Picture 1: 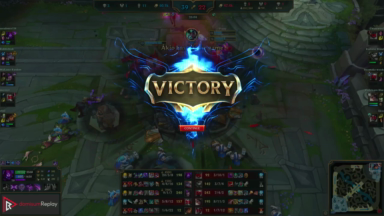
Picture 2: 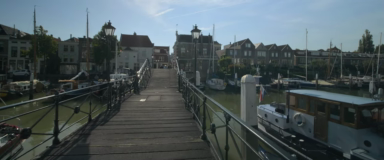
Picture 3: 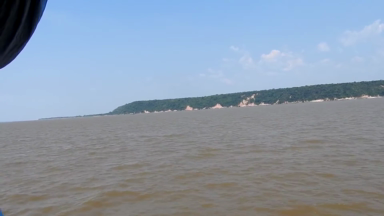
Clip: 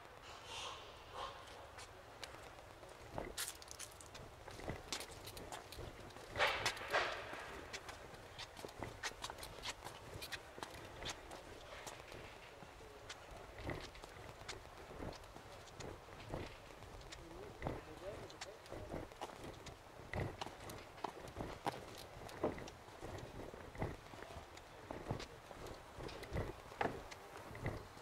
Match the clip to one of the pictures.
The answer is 2